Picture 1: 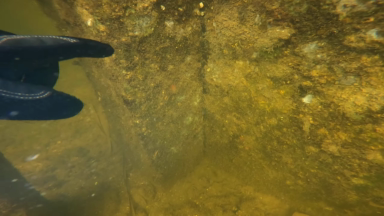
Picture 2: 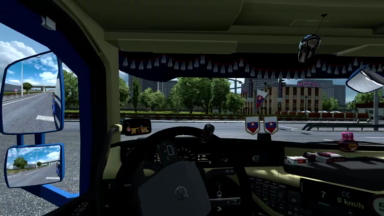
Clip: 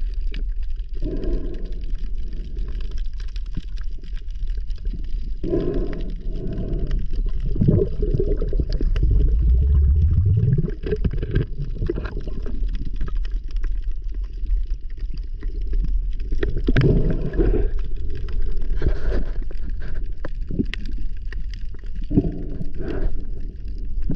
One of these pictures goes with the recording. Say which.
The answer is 1